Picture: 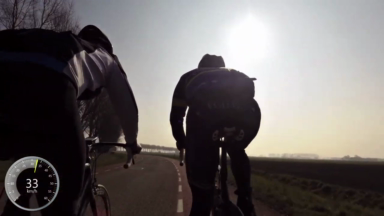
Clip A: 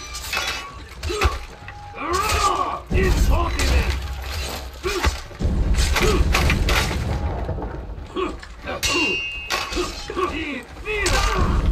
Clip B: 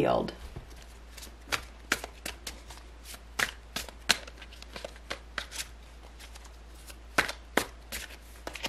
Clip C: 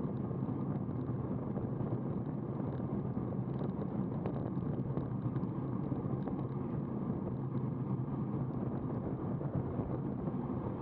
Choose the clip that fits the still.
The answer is C